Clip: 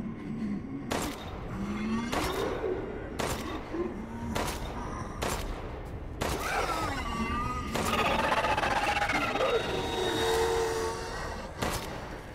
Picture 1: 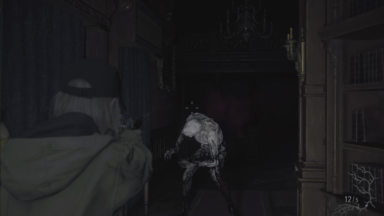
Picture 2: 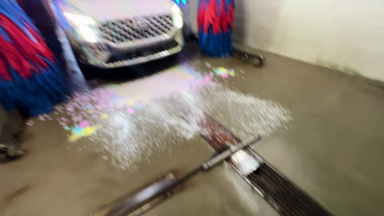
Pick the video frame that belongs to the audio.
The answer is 1